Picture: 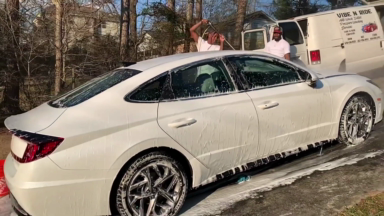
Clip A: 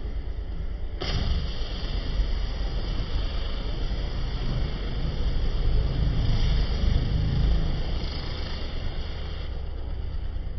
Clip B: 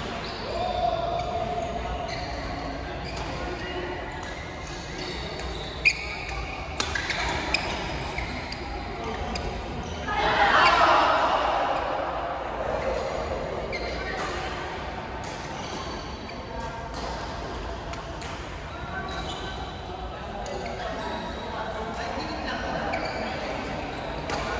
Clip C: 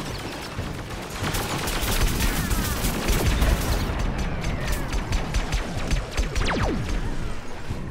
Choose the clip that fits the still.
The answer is A